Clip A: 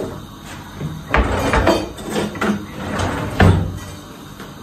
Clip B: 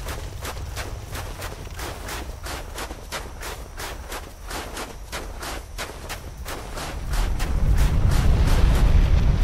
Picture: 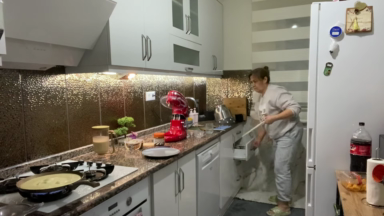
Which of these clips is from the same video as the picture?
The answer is A